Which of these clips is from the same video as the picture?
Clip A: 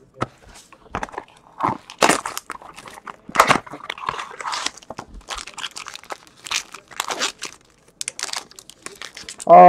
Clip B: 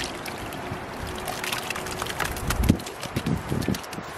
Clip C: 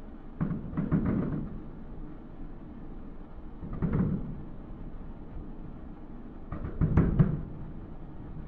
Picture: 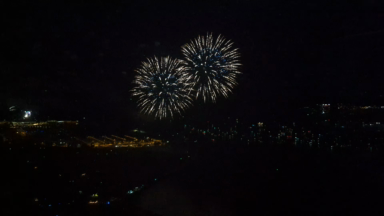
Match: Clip C